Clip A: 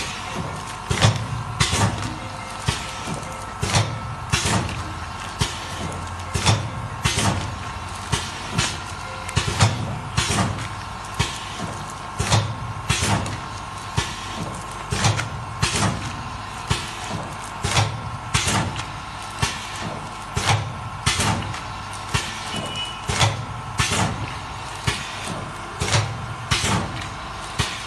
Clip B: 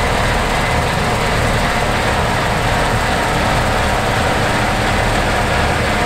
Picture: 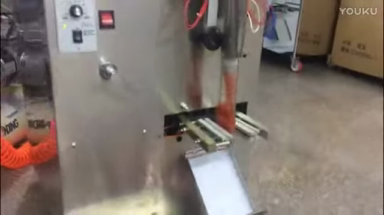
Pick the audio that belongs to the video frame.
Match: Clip A